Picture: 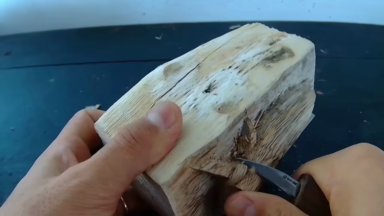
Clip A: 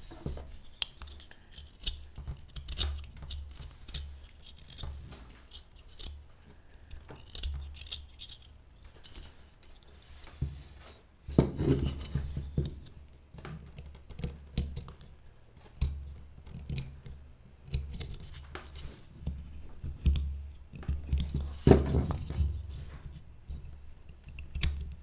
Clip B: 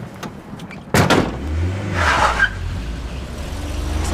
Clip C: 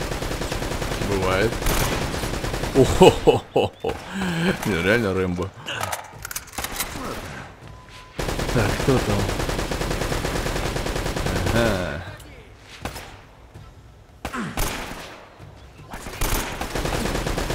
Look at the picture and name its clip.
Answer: A